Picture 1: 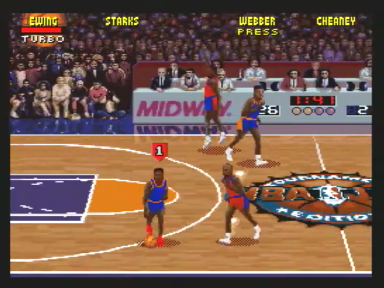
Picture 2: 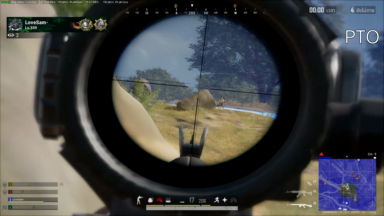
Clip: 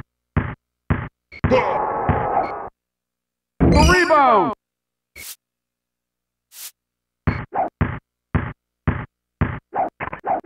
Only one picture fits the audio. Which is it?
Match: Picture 1